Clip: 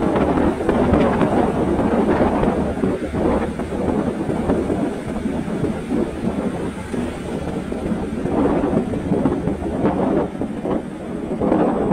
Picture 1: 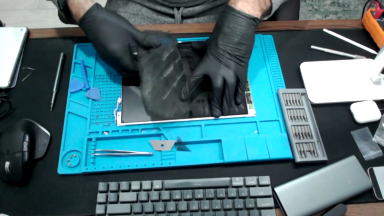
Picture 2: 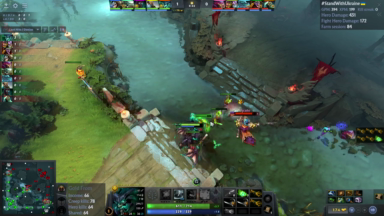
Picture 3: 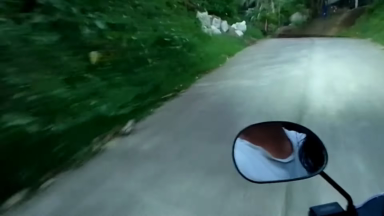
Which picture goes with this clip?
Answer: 3